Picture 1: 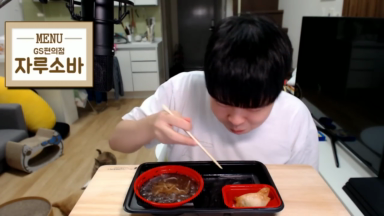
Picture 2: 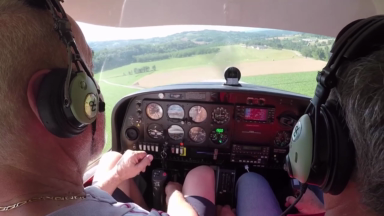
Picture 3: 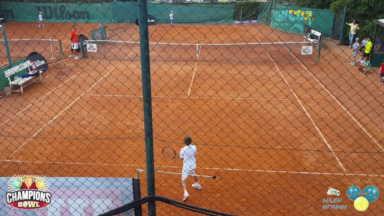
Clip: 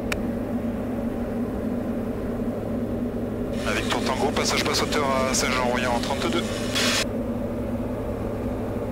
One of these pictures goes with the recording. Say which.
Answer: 2